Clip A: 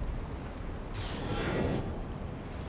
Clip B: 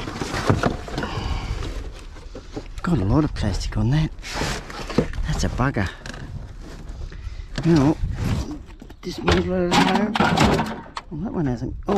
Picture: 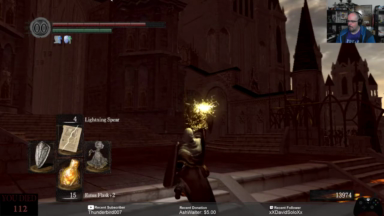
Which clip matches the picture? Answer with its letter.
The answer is A